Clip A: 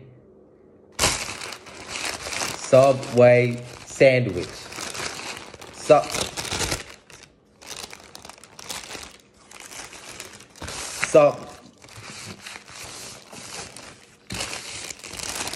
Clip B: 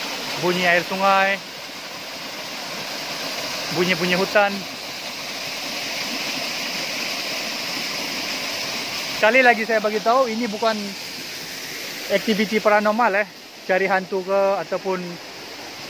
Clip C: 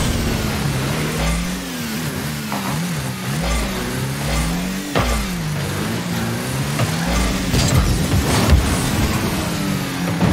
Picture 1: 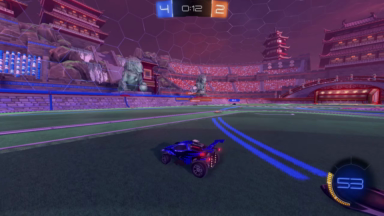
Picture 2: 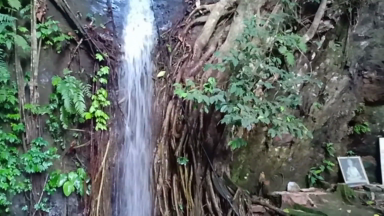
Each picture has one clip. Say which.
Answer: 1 C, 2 B